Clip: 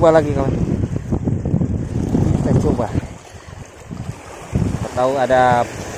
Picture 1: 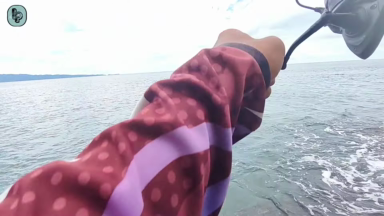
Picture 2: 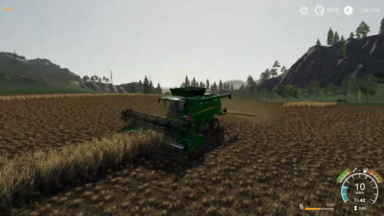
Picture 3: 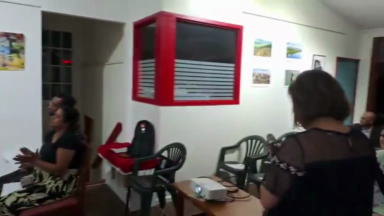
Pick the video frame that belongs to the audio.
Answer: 1